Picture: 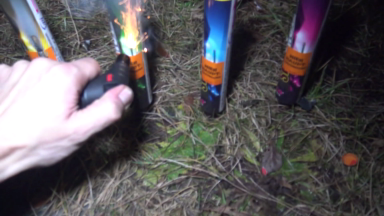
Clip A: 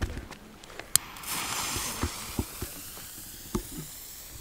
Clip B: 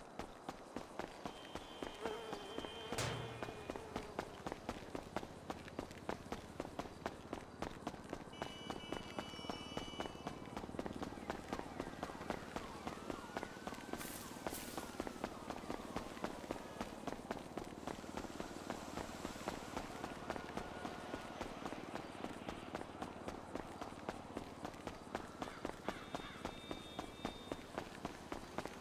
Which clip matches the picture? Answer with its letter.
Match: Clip A